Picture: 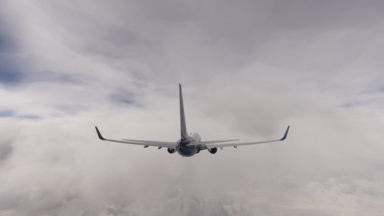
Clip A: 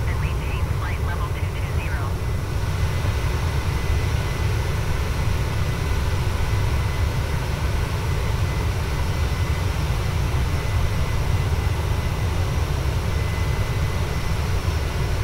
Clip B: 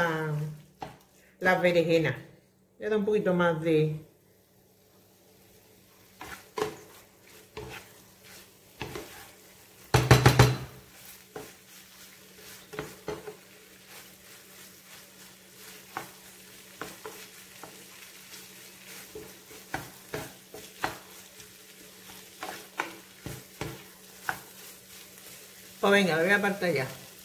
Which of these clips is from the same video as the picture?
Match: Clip A